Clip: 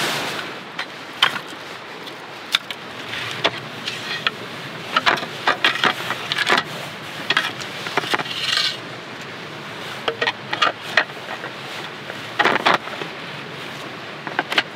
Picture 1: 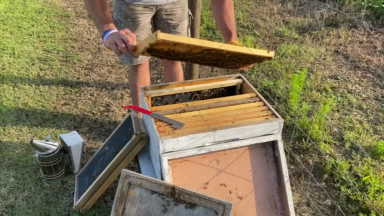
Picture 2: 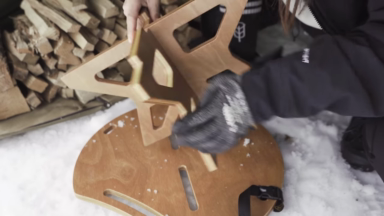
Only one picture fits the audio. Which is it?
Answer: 2